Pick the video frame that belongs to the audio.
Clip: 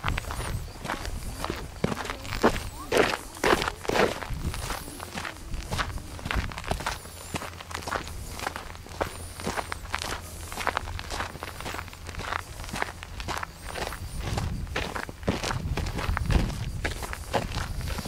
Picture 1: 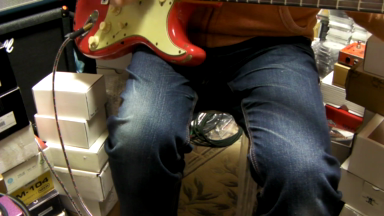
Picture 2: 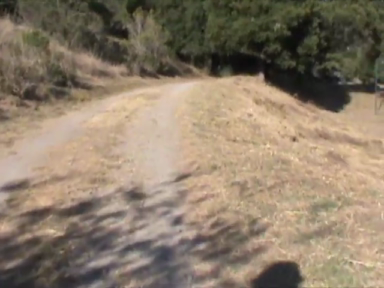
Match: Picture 2